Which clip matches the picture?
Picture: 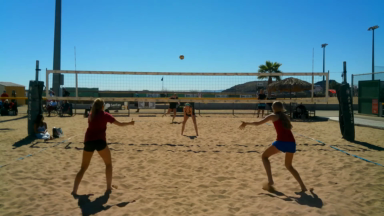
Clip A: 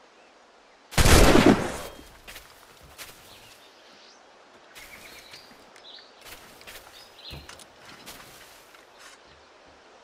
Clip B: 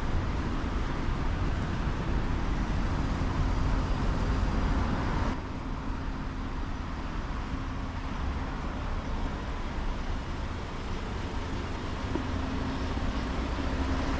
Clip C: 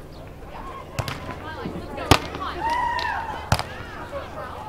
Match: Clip C